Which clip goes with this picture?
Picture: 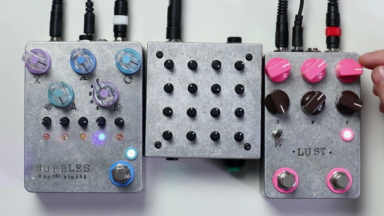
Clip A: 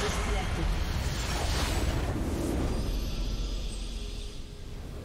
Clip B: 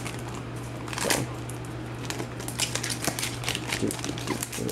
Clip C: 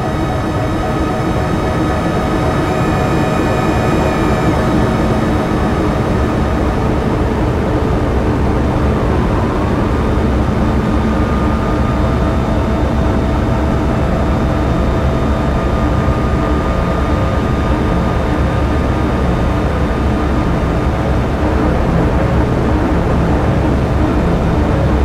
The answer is C